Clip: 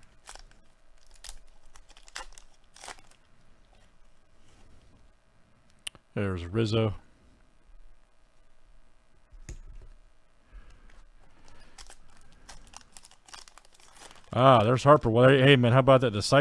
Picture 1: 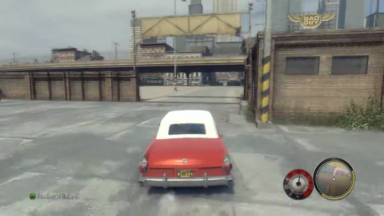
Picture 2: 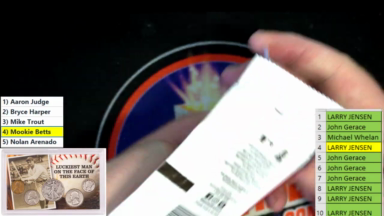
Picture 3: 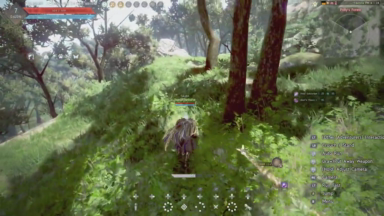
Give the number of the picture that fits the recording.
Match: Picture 2